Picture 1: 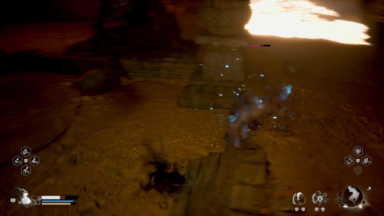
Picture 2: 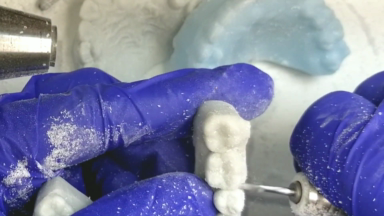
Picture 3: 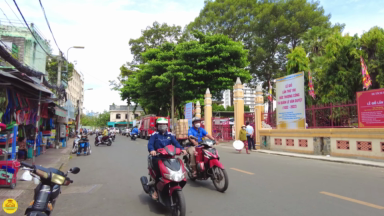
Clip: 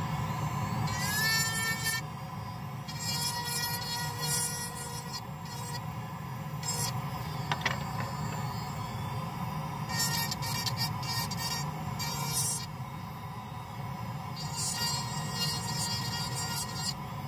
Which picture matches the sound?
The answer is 2